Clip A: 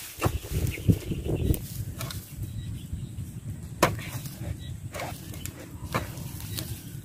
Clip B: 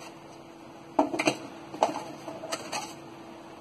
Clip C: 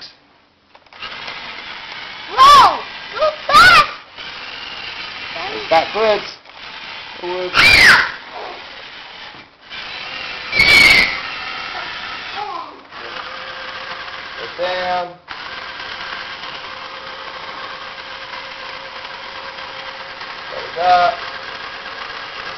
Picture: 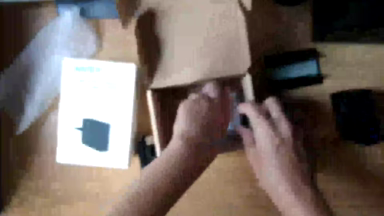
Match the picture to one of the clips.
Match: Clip B